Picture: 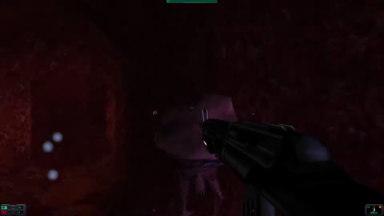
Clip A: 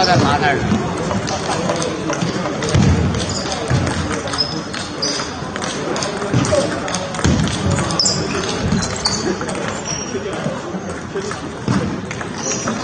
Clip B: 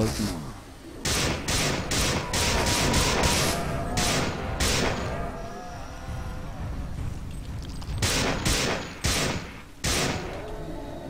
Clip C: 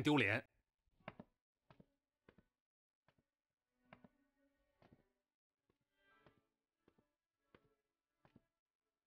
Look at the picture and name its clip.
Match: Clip B